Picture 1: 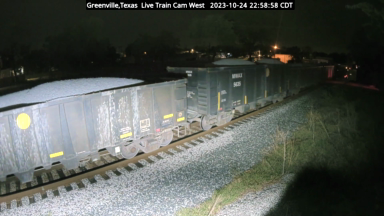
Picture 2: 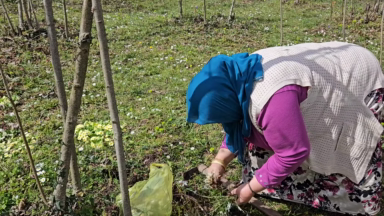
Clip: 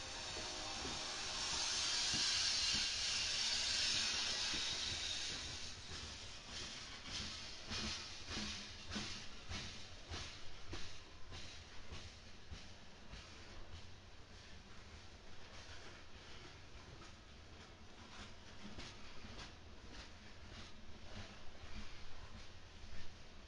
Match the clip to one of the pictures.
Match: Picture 1